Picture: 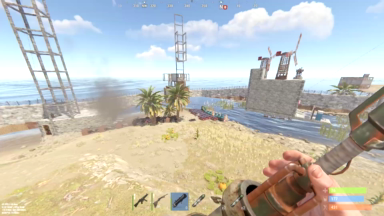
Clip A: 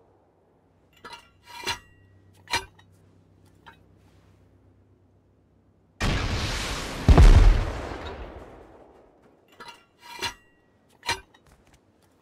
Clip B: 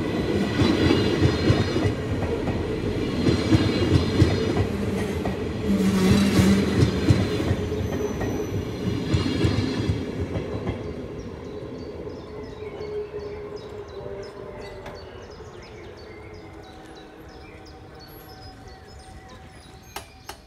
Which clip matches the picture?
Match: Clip A